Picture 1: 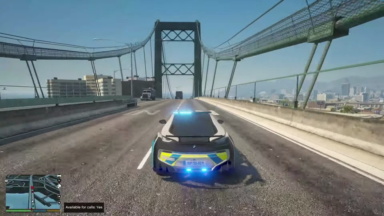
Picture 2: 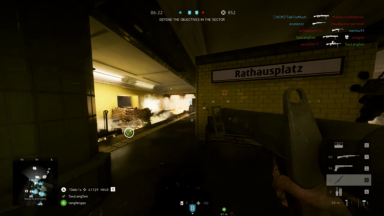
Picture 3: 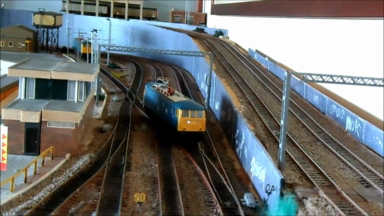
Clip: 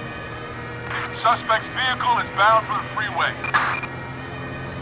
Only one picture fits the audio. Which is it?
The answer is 1